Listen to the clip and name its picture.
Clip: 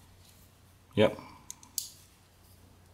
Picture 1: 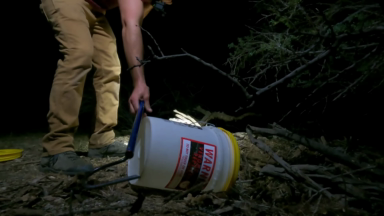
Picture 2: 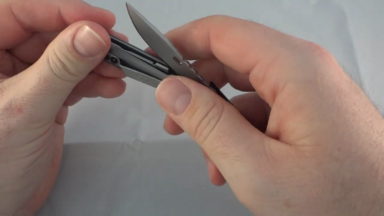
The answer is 2